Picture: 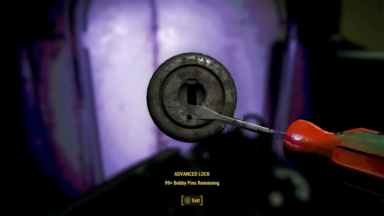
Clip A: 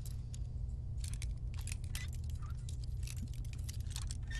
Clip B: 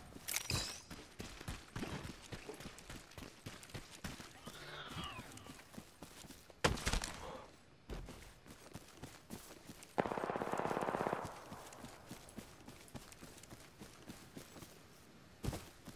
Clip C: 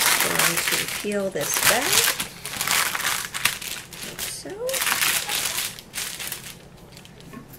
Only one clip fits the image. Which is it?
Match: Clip A